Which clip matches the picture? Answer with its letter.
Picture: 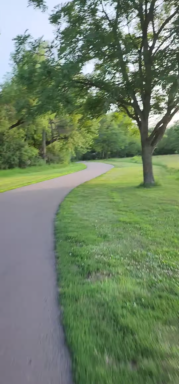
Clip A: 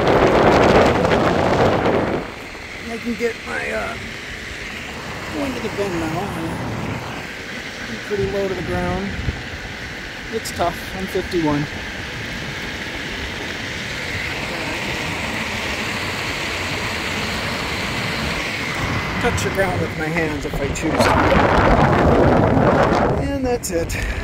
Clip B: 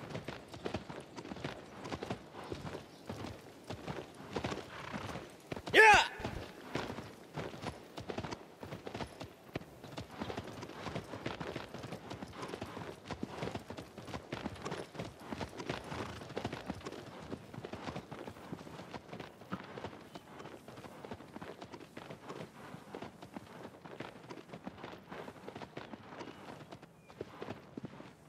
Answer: A